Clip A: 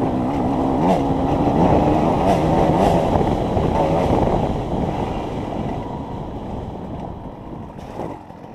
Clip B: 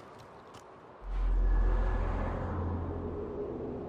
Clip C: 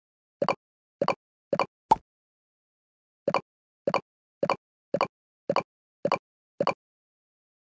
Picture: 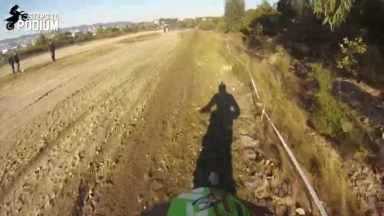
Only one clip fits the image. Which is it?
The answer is A